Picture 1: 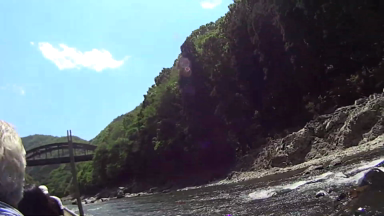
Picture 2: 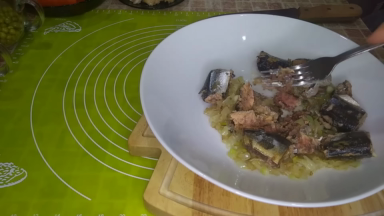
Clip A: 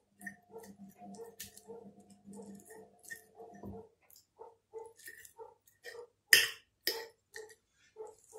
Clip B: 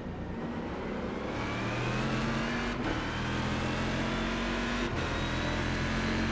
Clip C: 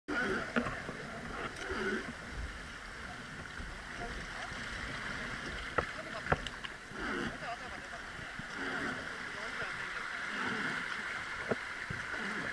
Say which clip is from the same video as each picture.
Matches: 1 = C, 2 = A